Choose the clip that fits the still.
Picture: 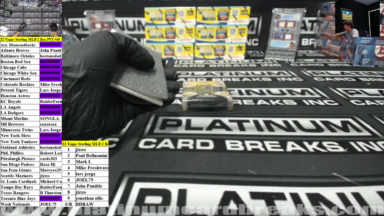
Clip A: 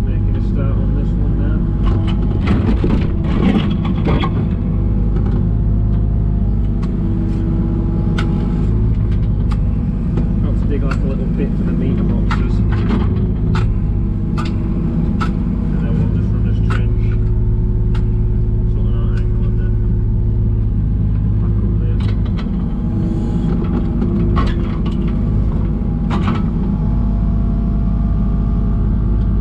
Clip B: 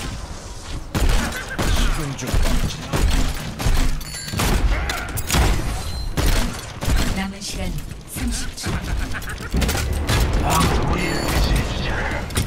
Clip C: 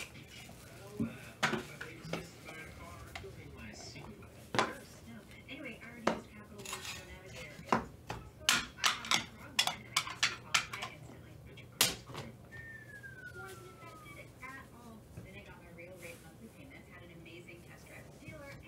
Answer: C